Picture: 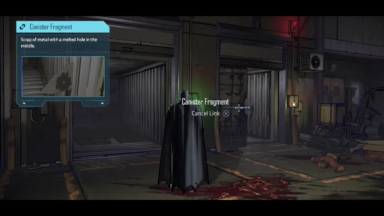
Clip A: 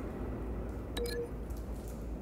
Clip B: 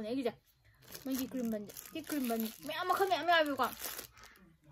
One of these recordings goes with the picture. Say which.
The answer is A